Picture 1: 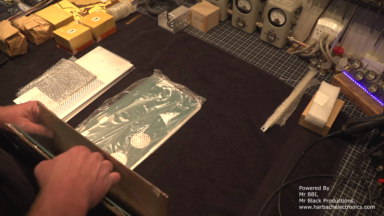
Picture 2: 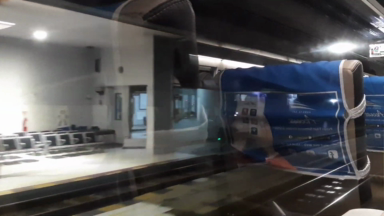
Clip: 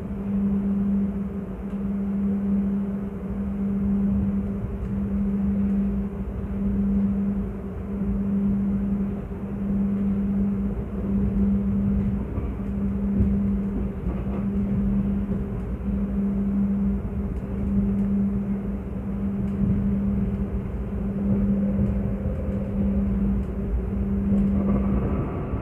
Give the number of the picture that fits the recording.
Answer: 2